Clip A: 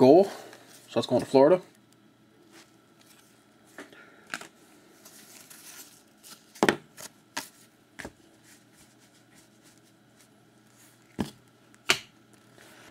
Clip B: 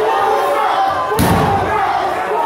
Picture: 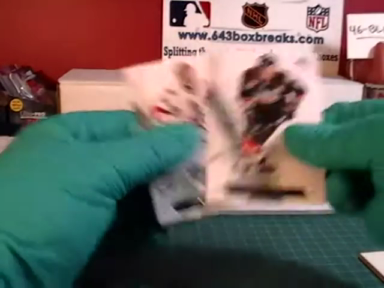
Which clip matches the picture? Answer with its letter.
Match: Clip A